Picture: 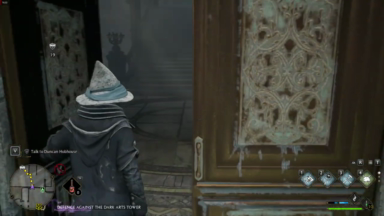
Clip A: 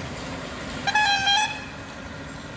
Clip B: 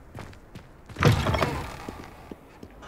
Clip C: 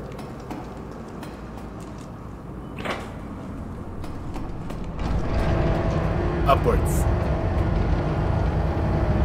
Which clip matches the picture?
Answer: B